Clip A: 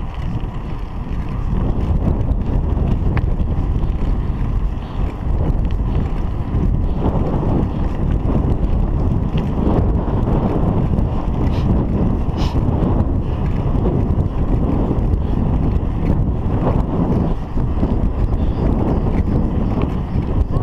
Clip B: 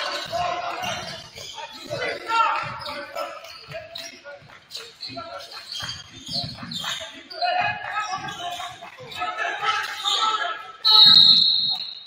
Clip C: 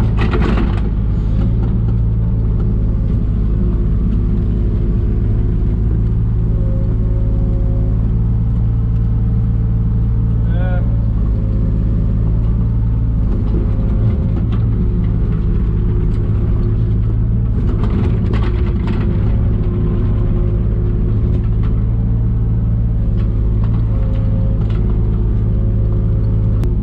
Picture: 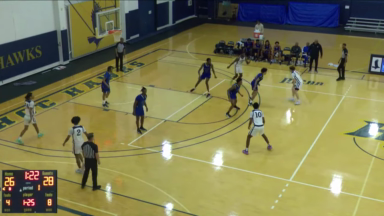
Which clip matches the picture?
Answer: B